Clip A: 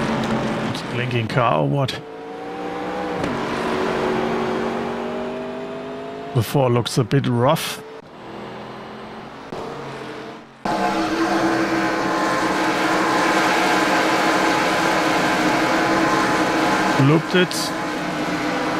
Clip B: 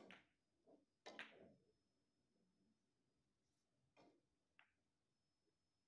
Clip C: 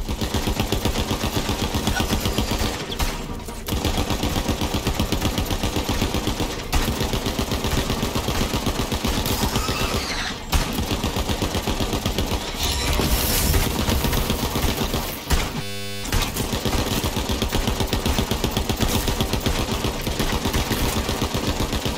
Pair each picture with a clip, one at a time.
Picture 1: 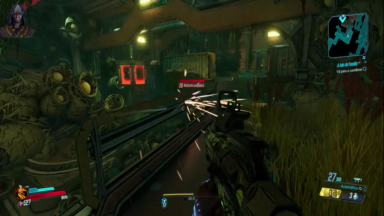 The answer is C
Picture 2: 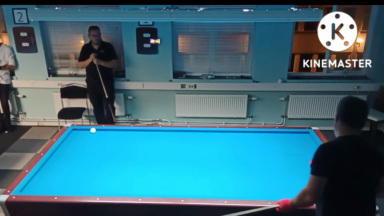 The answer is B